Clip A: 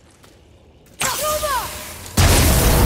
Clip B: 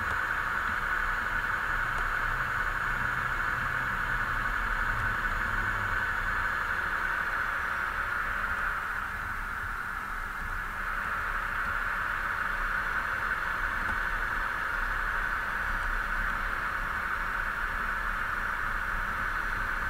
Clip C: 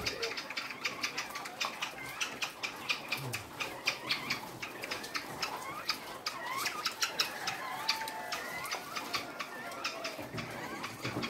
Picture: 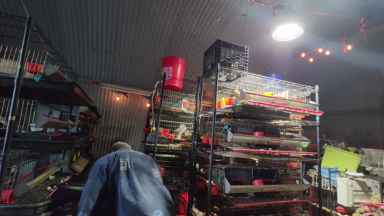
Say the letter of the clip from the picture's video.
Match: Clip C